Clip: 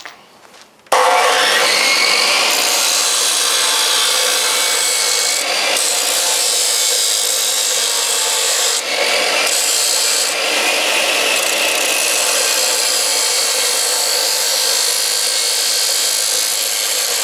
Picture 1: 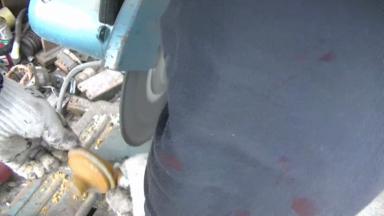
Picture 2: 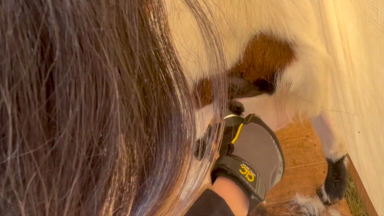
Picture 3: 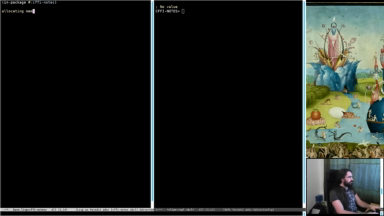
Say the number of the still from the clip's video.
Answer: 1